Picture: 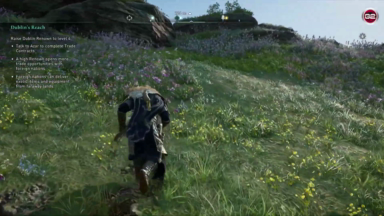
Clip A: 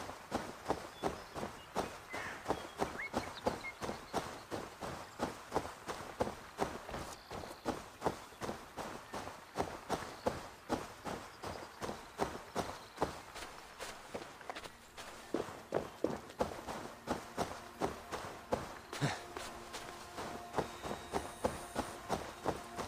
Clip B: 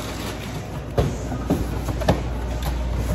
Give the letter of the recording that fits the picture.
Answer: A